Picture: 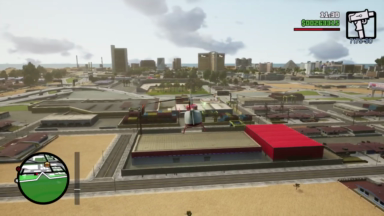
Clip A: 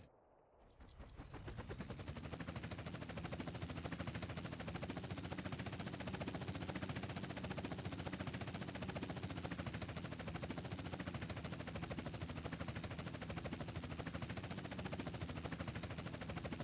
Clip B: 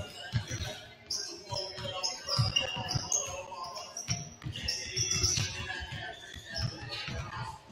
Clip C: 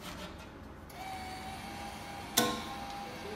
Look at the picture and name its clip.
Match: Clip A